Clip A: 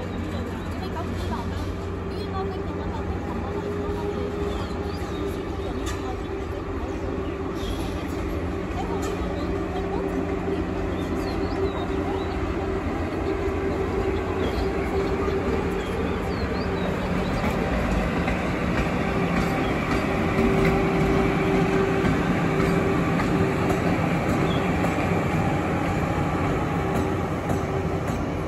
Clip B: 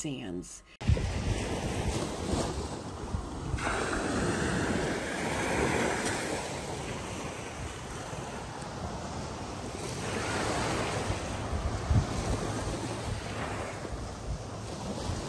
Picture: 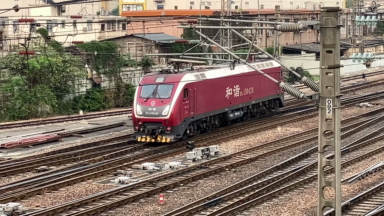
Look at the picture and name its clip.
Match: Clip A